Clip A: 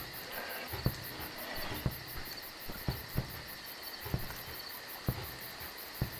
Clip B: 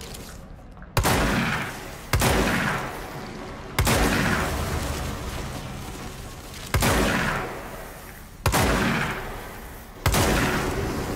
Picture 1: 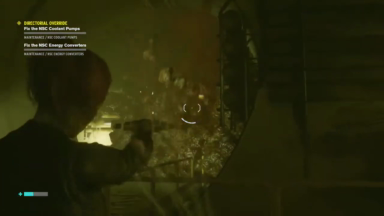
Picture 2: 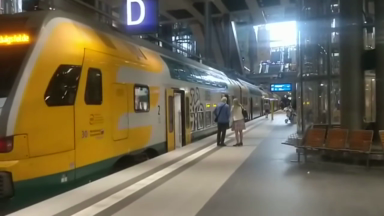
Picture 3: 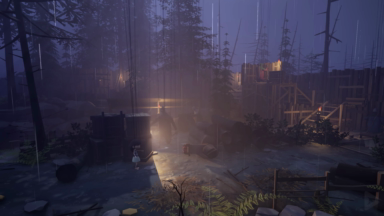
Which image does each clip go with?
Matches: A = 3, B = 1